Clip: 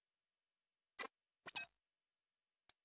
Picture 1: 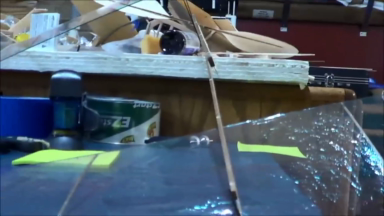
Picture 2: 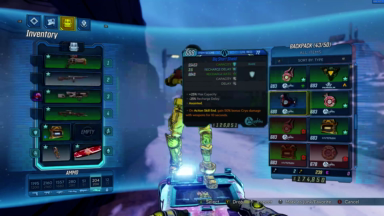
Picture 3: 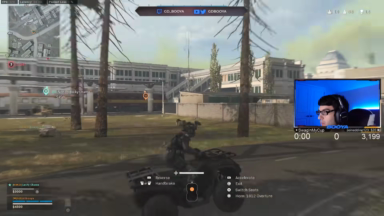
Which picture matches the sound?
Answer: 2